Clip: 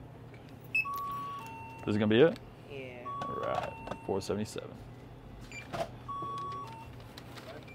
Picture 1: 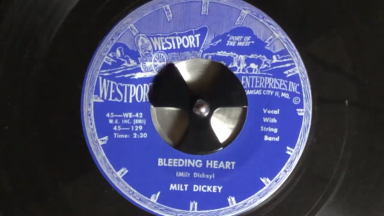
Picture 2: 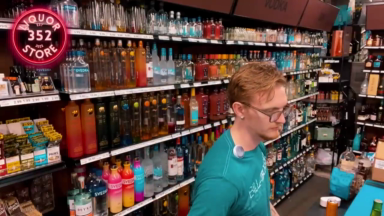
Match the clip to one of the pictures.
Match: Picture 2